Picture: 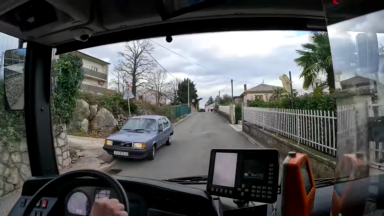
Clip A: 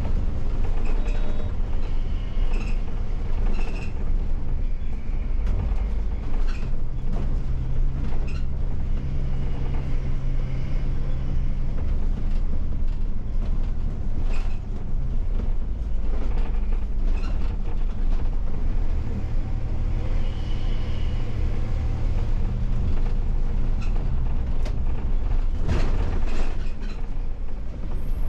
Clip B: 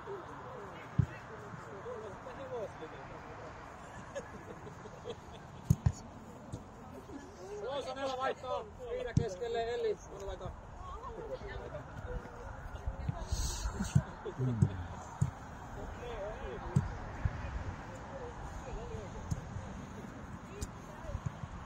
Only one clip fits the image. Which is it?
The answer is A